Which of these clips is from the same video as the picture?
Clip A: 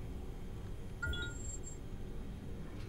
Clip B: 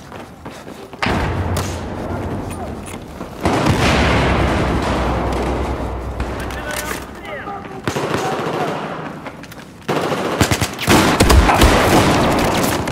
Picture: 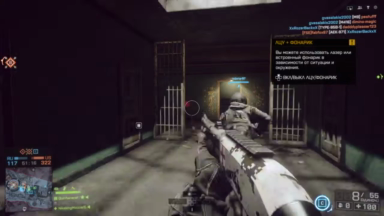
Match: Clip B